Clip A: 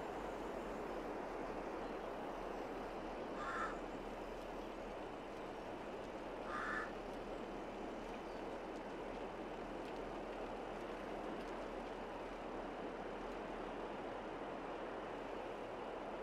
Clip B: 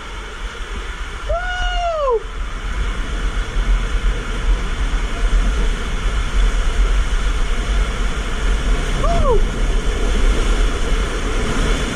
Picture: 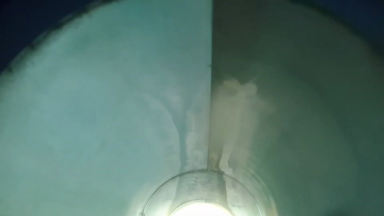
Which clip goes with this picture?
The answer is B